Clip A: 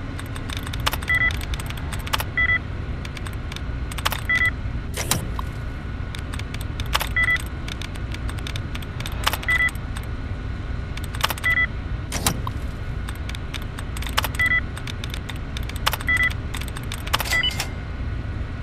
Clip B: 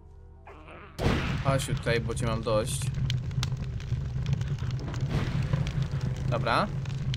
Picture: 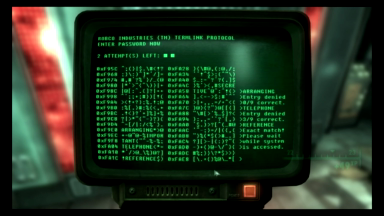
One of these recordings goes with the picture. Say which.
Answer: A